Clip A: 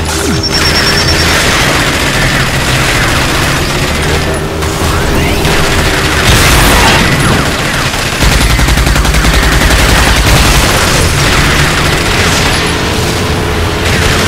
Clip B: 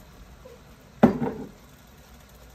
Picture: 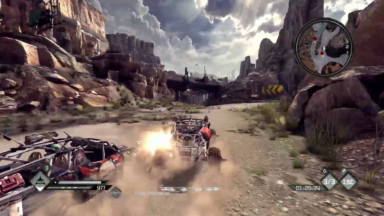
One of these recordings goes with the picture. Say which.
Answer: A